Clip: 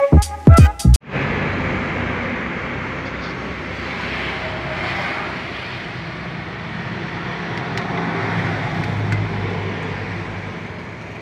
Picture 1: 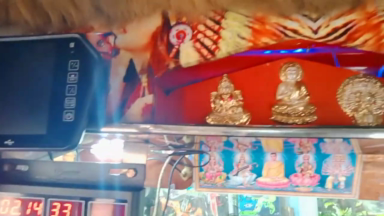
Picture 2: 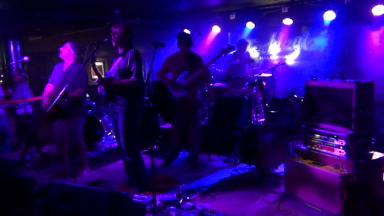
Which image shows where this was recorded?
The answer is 1